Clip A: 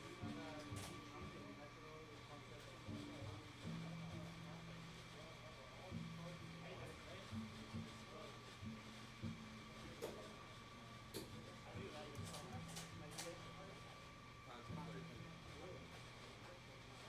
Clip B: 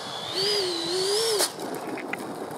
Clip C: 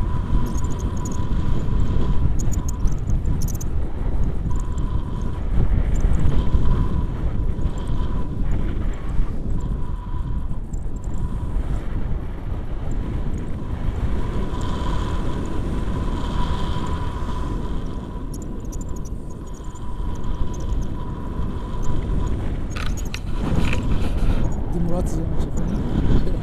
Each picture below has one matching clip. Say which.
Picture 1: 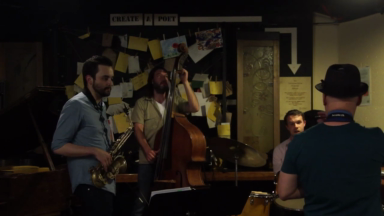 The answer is A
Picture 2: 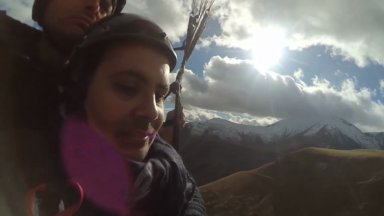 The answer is C